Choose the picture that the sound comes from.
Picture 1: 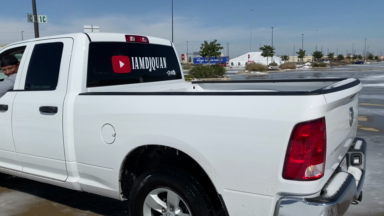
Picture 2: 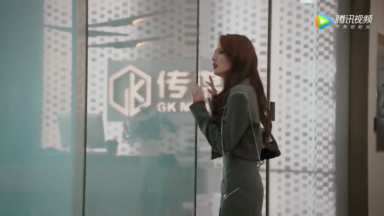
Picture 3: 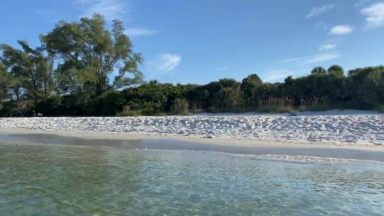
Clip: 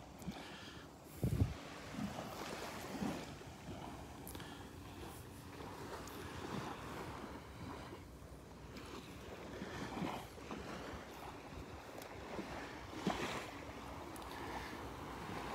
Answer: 3